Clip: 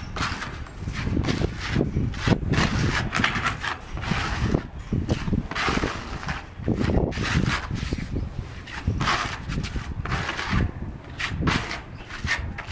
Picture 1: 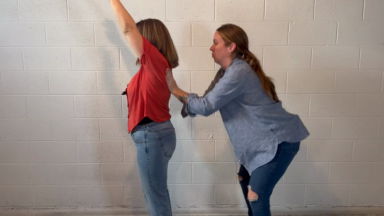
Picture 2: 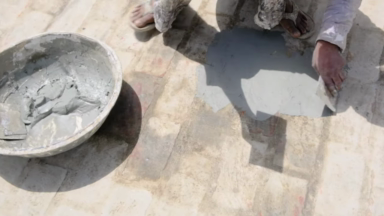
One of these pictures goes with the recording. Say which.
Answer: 2